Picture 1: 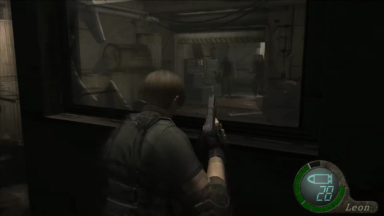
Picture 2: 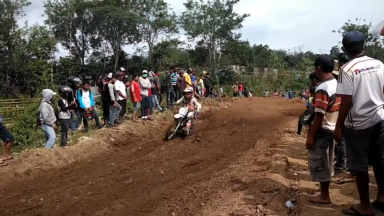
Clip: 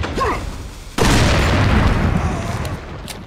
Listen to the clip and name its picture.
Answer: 1